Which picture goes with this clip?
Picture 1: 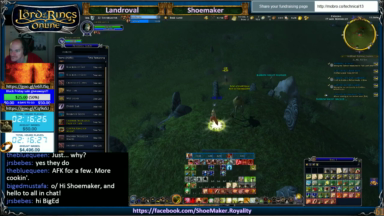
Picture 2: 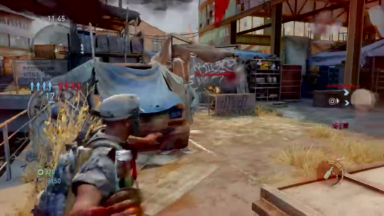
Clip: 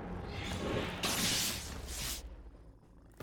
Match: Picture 1